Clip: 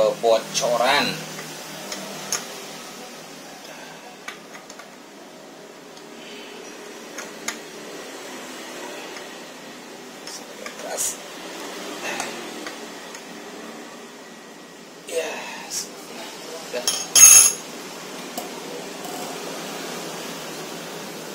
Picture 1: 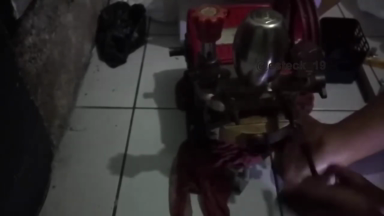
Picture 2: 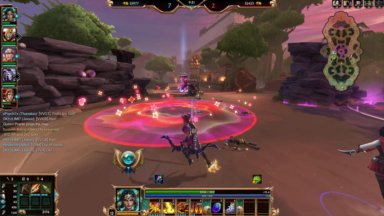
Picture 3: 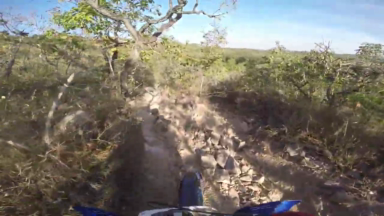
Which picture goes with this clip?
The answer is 1